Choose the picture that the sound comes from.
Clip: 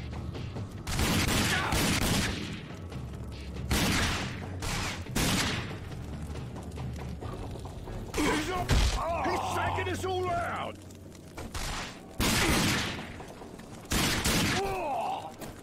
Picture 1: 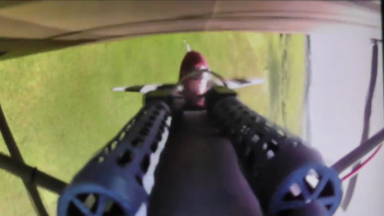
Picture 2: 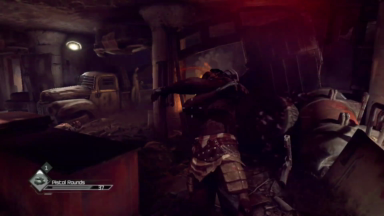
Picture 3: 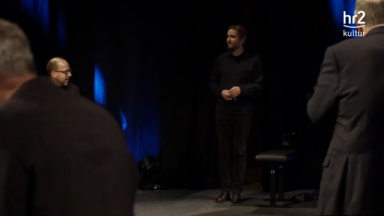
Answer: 2